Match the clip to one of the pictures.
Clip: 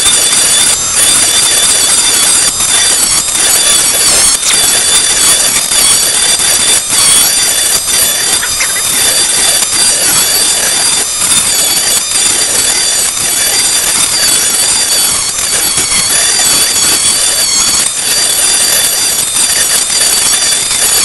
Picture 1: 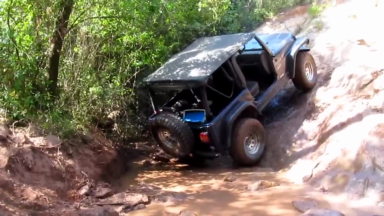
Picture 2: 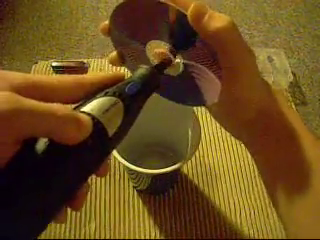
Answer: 2